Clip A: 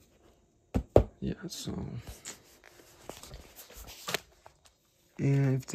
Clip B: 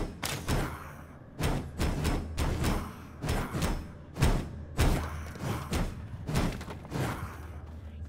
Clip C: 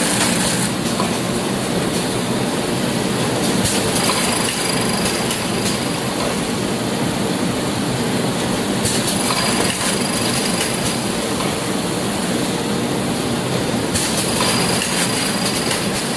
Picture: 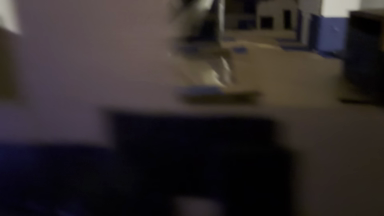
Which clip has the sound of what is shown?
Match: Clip A